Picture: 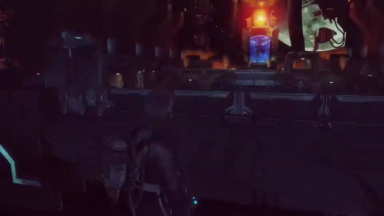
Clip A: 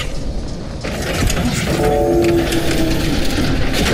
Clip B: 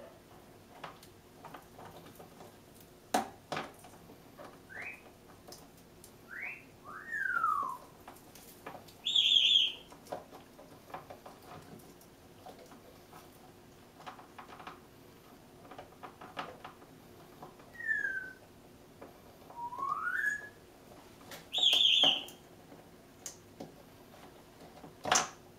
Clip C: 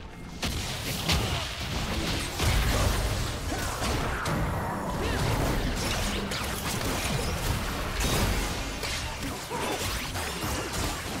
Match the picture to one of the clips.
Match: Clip A